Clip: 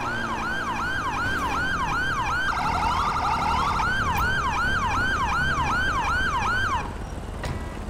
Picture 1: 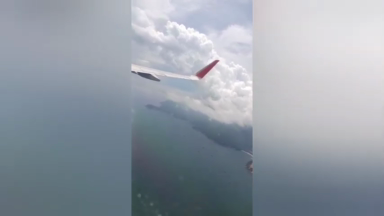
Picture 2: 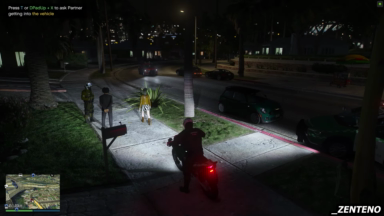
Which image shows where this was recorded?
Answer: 2